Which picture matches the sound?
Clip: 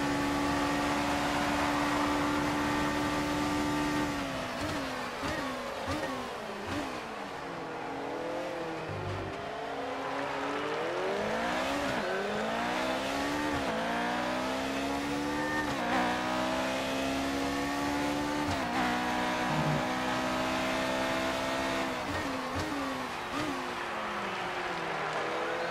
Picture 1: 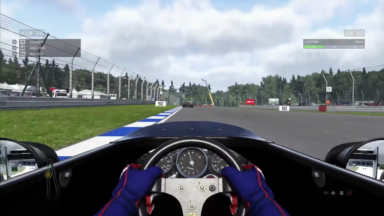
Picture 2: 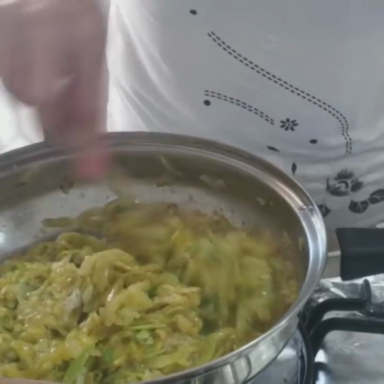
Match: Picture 1